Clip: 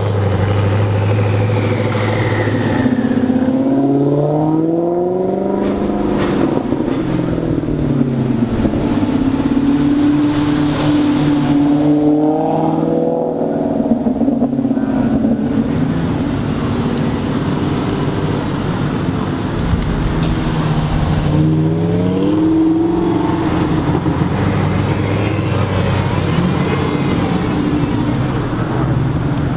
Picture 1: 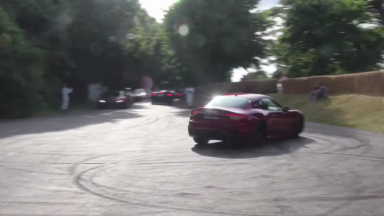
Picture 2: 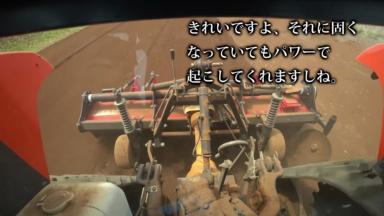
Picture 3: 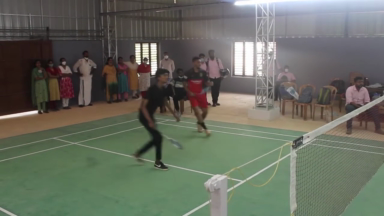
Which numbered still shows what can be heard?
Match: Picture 1